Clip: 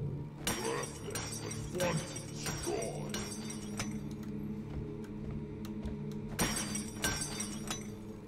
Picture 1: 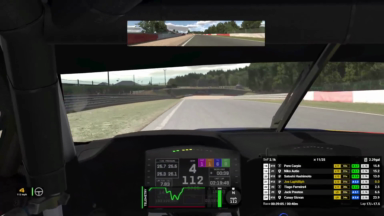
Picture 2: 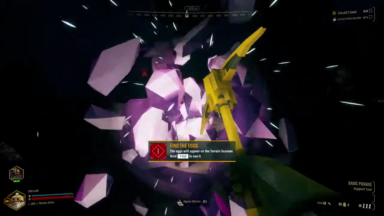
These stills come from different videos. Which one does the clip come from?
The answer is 2